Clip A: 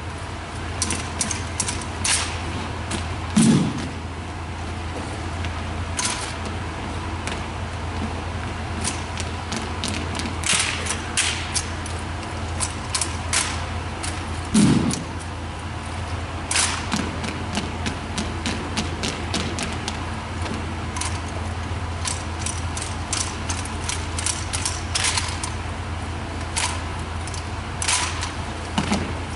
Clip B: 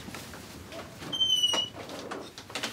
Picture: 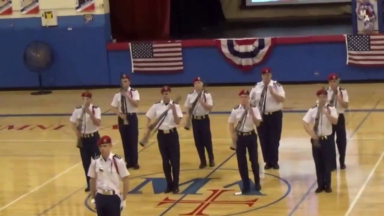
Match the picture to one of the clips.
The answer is A